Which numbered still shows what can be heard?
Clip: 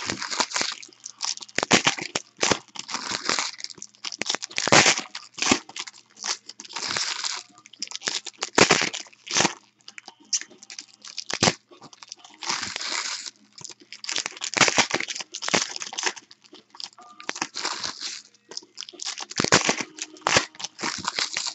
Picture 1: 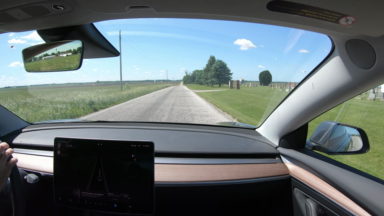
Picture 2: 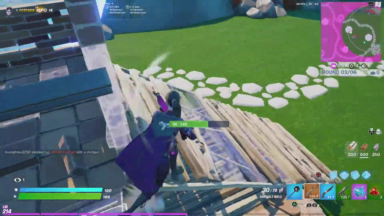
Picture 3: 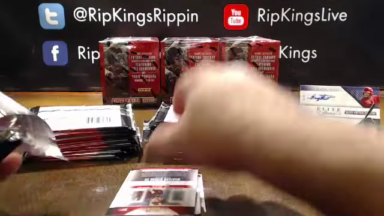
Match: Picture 3